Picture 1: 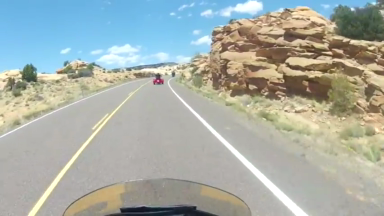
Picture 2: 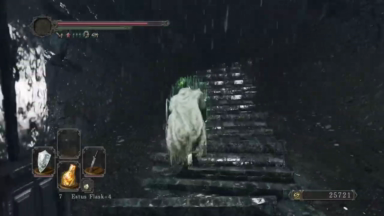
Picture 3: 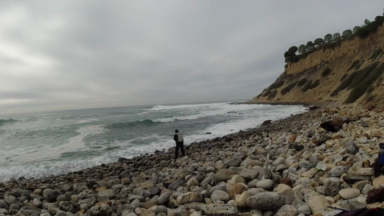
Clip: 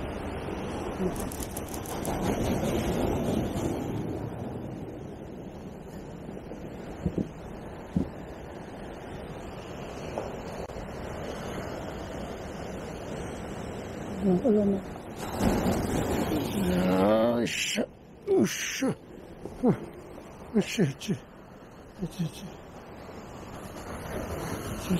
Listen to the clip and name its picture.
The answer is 3